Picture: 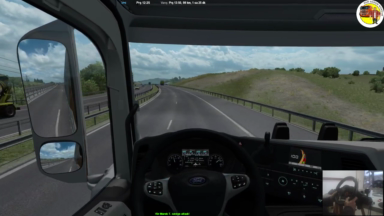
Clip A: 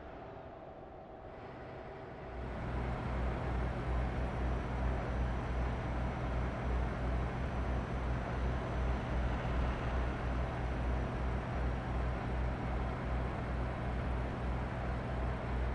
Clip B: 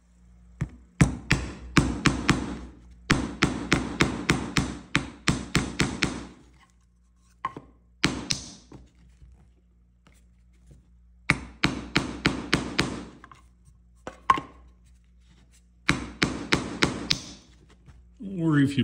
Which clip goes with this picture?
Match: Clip A